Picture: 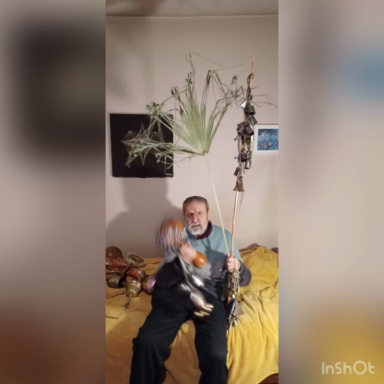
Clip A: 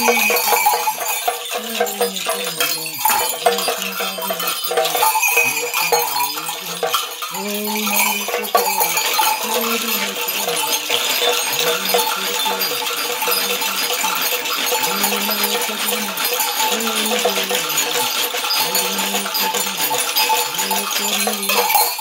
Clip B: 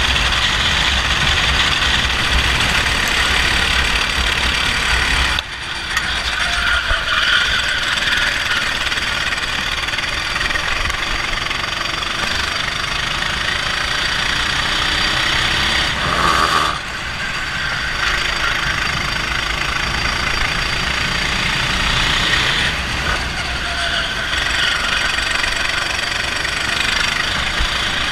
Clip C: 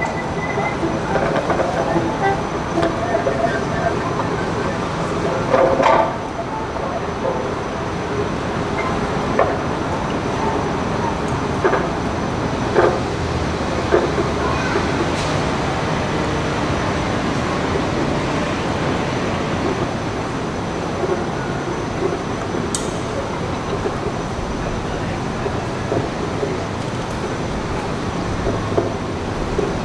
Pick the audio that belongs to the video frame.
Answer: A